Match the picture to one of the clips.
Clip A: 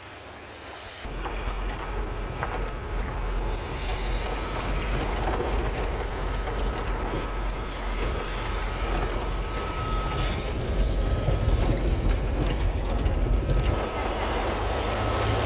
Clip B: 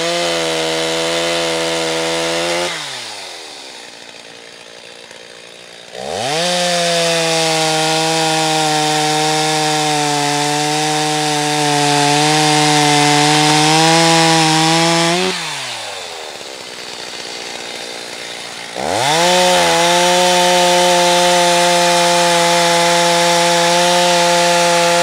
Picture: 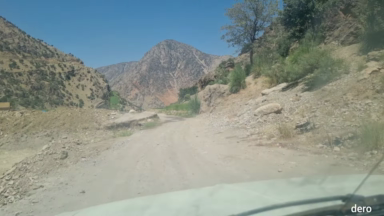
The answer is A